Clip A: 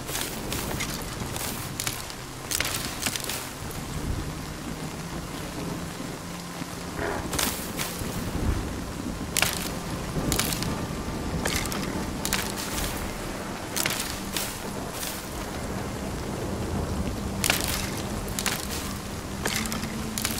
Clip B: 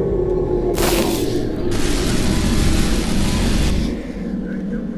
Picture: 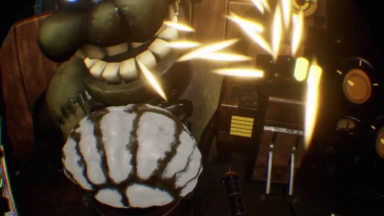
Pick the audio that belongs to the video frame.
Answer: B